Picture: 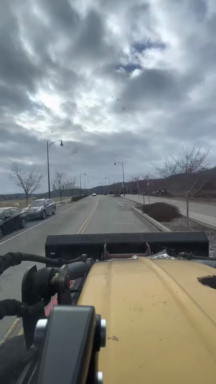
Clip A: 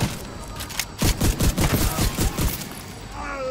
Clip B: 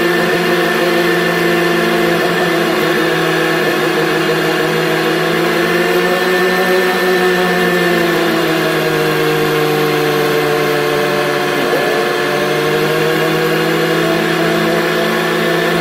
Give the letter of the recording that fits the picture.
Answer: B